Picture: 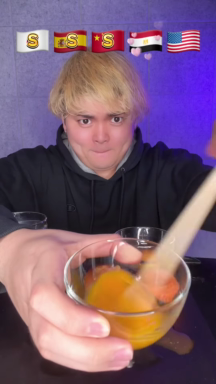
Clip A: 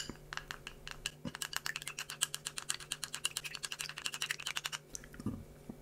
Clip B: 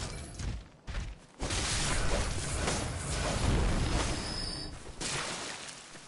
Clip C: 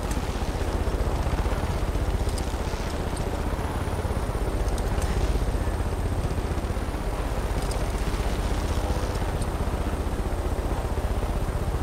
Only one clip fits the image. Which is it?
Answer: A